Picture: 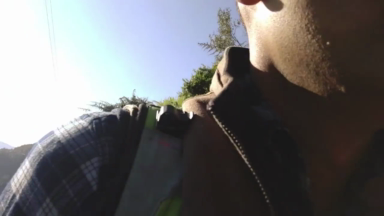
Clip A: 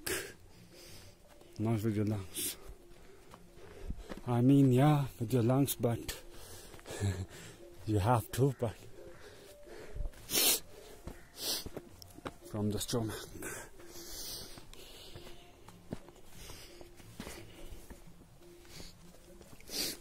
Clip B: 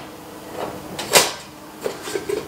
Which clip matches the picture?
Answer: A